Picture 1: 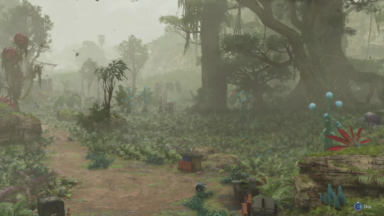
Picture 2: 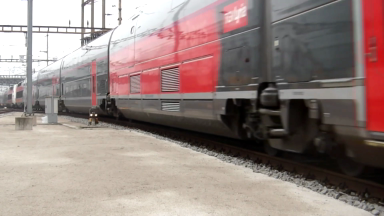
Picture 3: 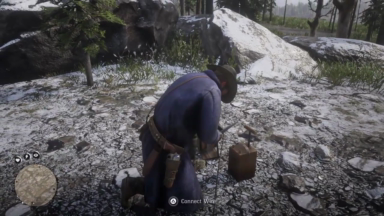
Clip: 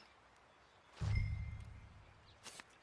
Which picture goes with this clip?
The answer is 3